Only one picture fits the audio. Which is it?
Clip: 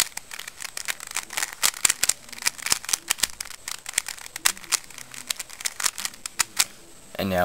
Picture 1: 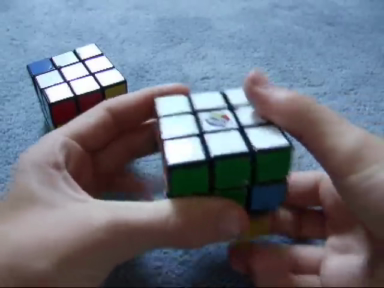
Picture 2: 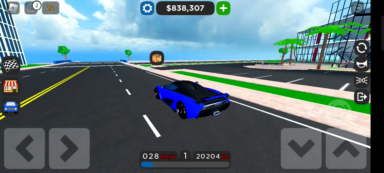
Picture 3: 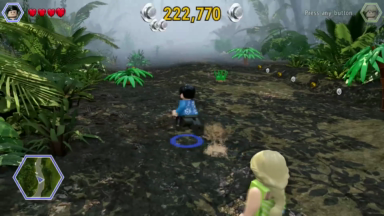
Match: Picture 1